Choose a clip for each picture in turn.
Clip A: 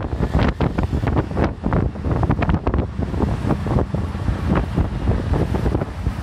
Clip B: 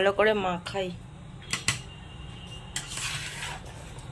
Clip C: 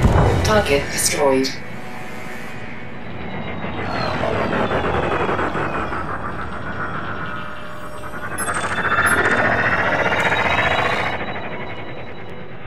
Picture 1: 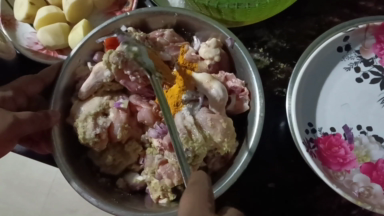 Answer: B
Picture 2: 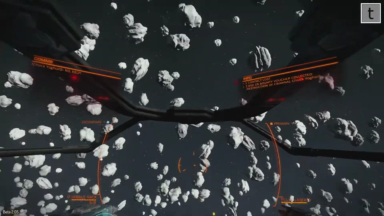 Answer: C